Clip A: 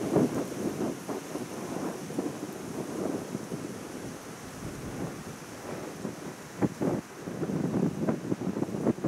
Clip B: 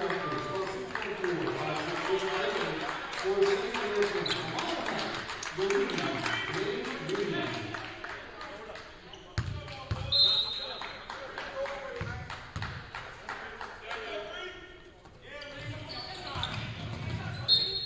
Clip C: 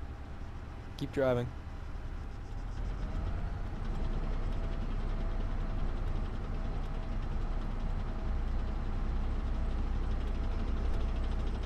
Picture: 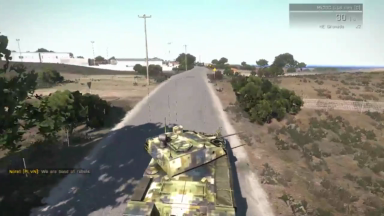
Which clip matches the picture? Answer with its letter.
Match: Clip C